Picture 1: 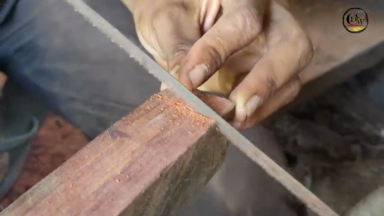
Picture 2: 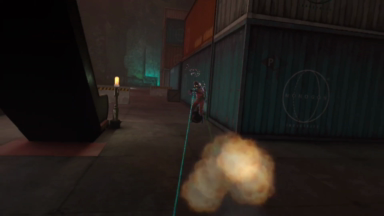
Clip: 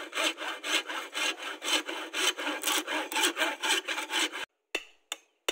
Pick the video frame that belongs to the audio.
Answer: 1